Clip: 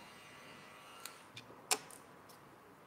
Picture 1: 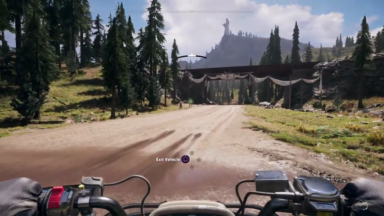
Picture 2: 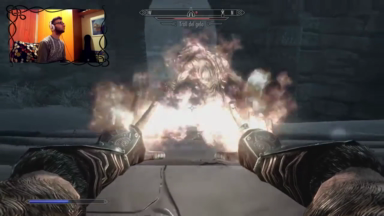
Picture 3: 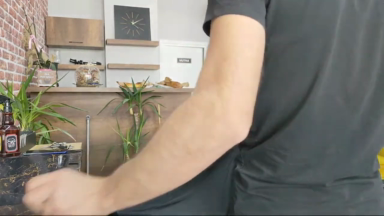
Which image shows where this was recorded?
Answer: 3